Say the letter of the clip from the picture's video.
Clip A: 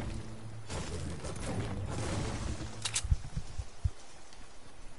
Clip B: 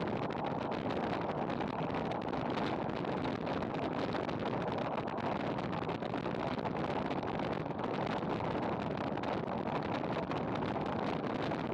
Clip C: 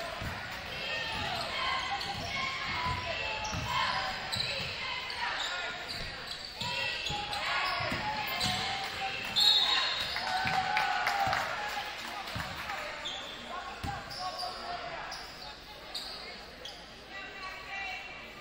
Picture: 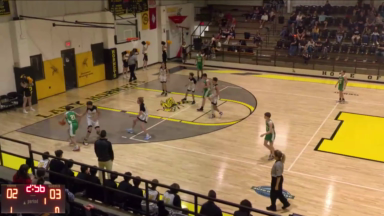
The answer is C